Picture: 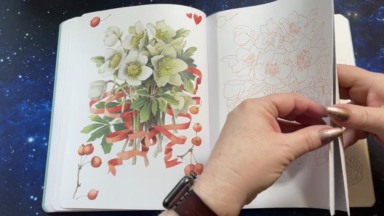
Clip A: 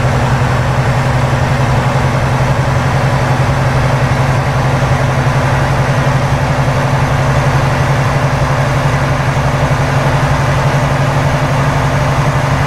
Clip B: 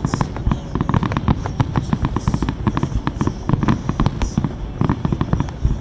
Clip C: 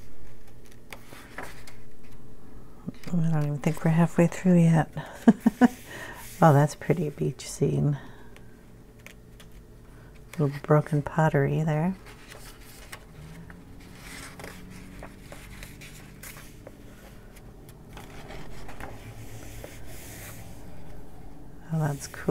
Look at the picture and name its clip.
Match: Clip C